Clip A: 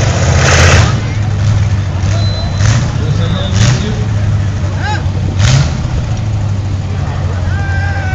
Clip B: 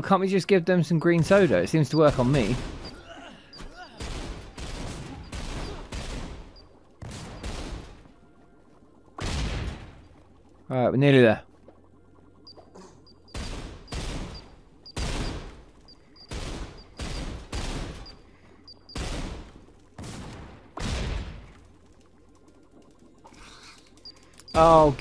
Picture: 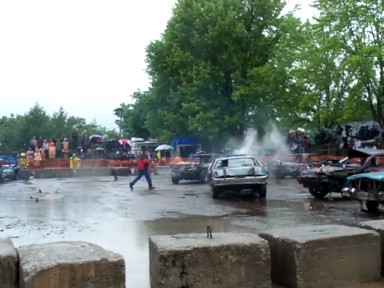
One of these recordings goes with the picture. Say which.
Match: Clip A